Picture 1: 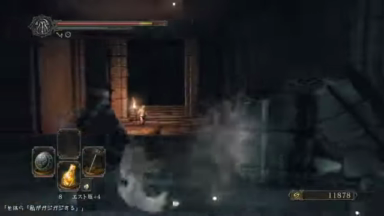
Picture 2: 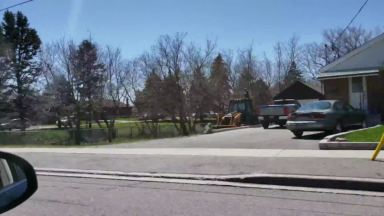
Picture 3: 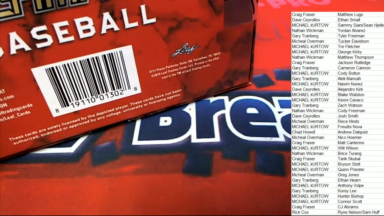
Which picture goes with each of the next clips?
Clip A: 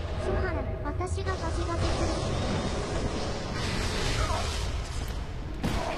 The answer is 1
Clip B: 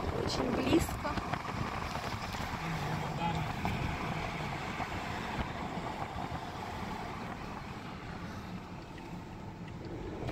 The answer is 2